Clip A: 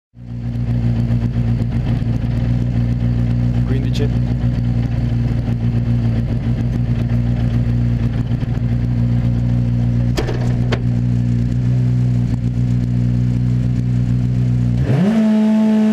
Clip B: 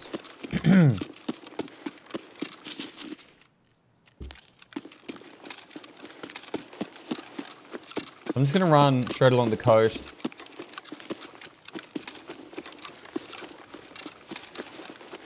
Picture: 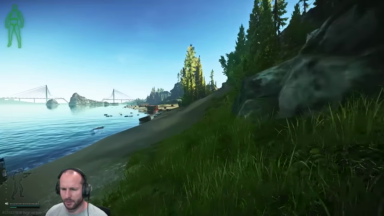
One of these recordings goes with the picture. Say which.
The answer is B